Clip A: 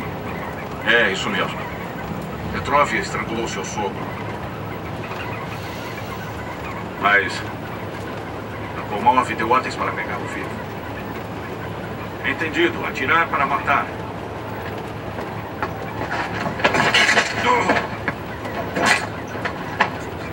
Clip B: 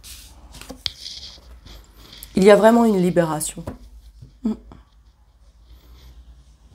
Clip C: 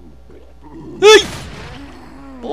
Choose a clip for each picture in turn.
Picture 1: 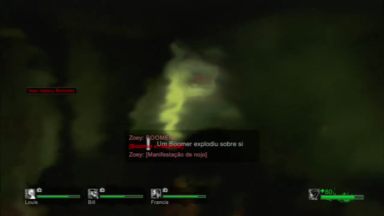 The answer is C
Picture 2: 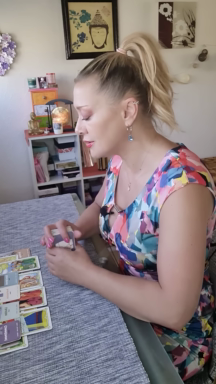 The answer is B